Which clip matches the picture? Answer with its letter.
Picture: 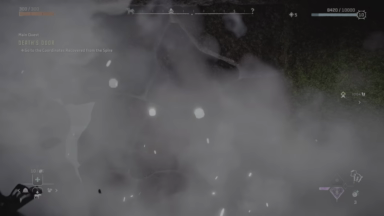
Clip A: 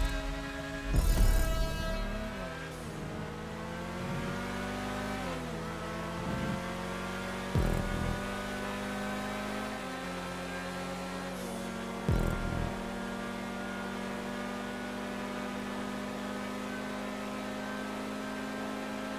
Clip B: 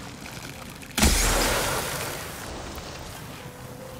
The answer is B